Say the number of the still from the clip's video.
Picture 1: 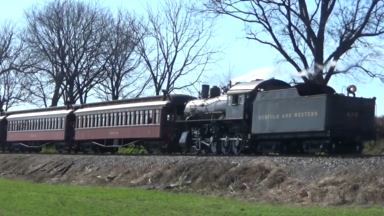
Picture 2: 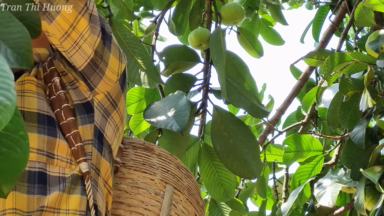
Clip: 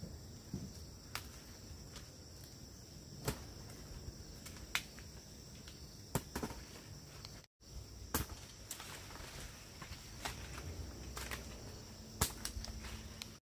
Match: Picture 2